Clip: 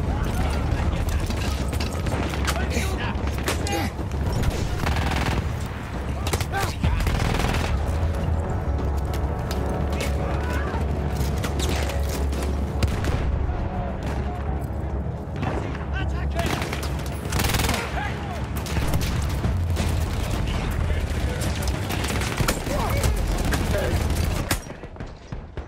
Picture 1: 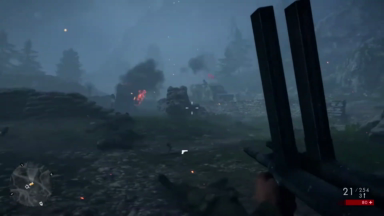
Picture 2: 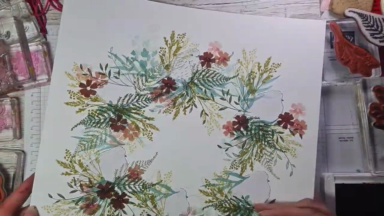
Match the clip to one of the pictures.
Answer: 1